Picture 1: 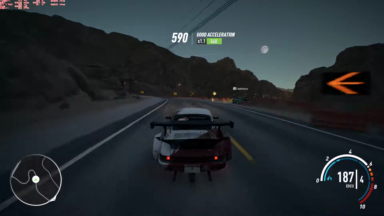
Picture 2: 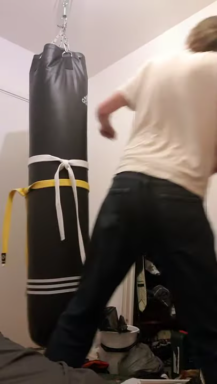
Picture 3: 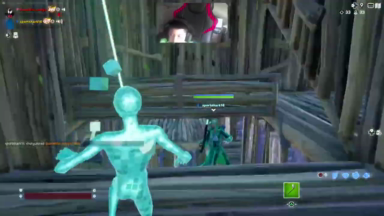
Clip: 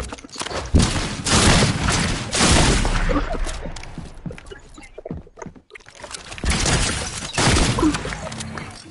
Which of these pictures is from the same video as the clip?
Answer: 3